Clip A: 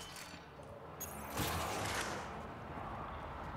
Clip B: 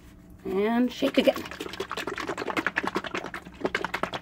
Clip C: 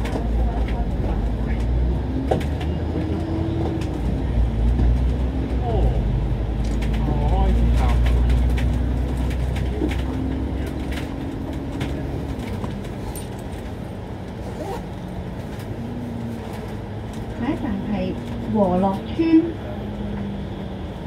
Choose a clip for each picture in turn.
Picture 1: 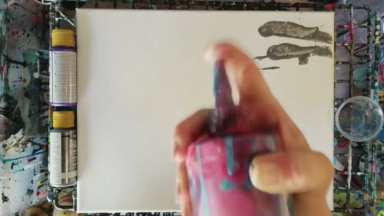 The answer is B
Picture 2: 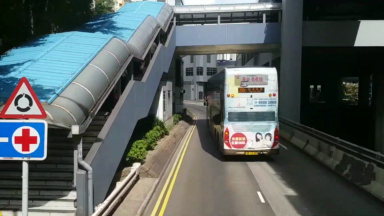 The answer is C